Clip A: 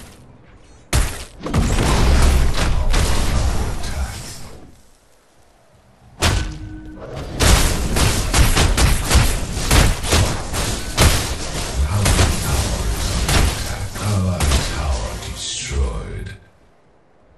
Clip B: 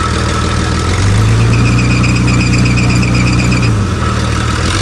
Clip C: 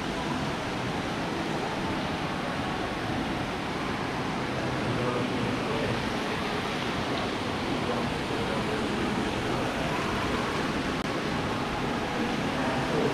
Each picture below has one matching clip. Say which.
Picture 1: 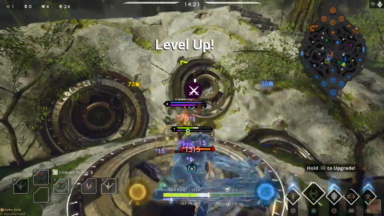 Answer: A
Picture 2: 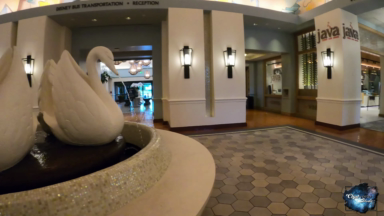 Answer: C